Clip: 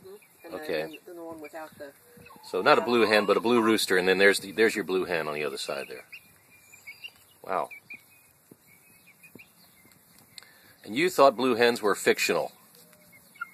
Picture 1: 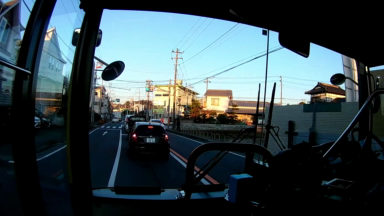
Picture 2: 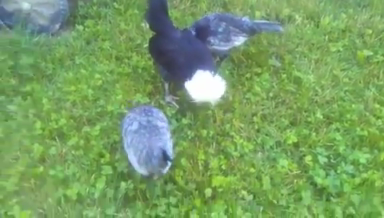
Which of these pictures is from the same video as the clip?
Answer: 2